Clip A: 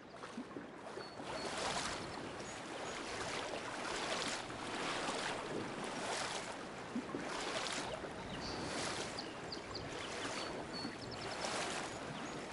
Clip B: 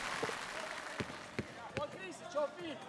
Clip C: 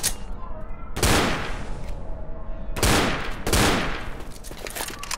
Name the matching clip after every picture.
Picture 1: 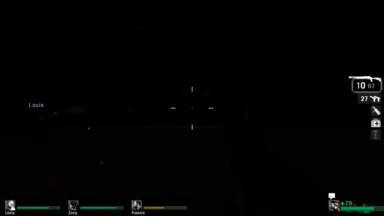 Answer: C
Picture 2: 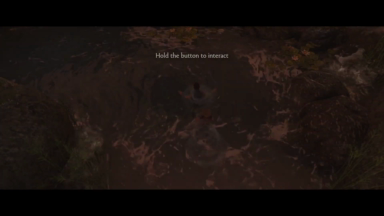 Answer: A